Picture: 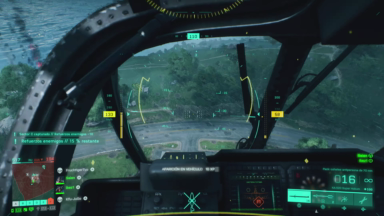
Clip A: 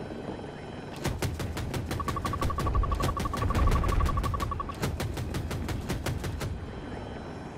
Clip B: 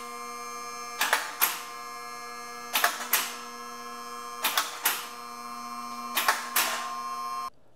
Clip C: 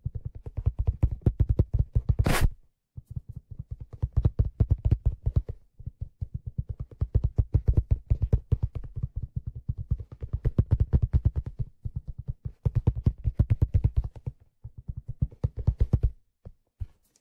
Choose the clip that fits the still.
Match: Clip A